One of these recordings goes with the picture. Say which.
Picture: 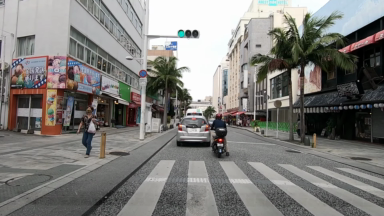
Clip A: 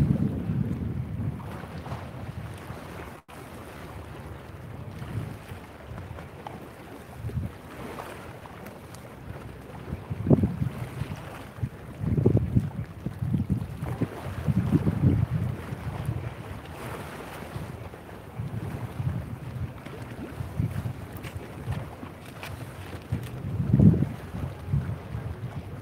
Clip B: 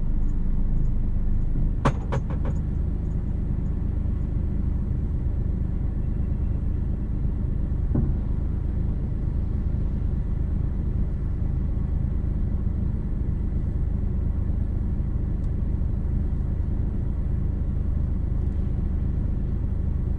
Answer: B